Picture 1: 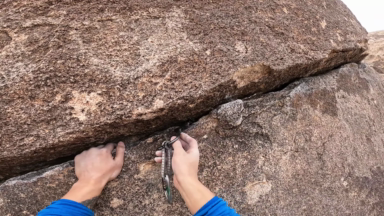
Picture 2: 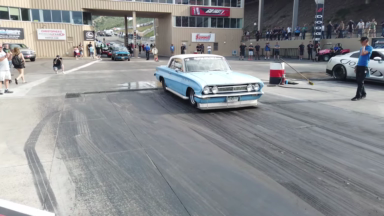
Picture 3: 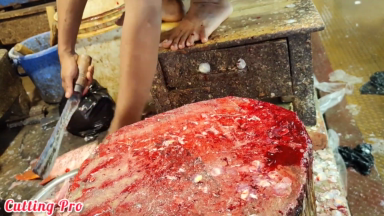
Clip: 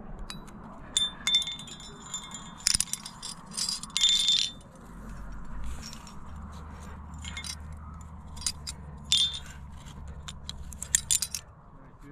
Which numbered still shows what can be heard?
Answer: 1